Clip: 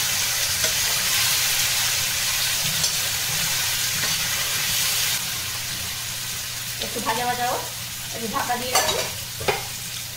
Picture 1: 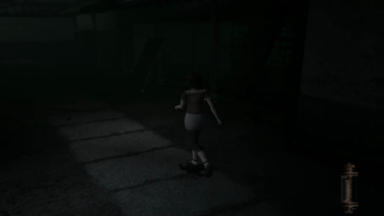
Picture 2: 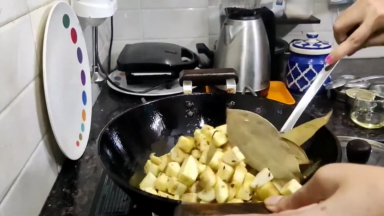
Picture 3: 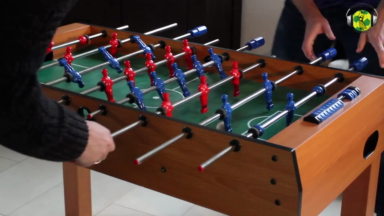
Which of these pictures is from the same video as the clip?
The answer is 2